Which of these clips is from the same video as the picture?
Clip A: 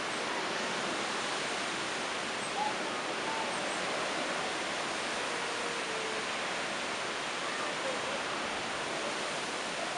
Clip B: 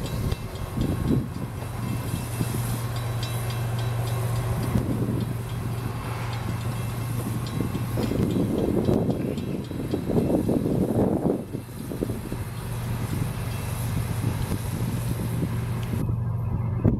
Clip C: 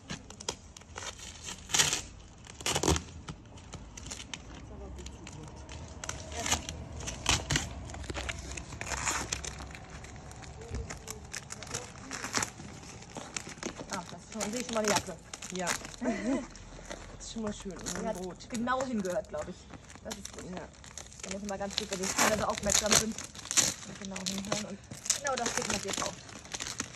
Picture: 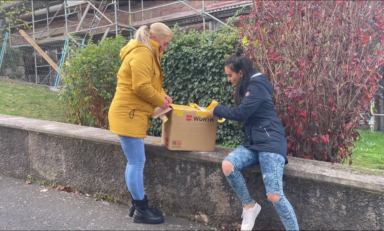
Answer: C